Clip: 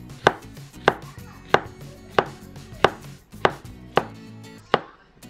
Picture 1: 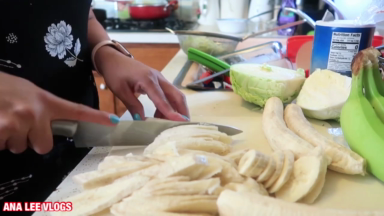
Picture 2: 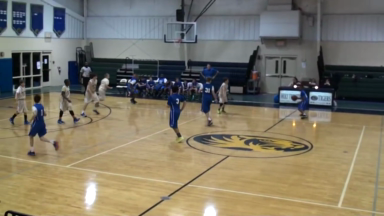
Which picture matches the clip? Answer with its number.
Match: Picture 1